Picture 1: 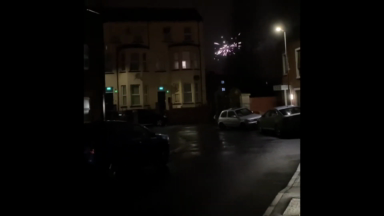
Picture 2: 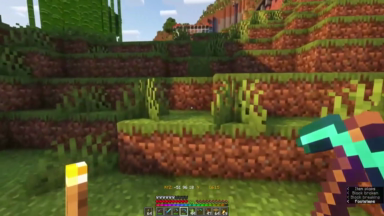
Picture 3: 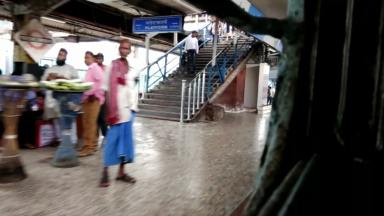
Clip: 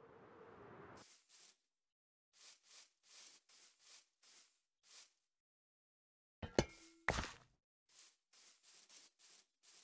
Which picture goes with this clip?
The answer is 2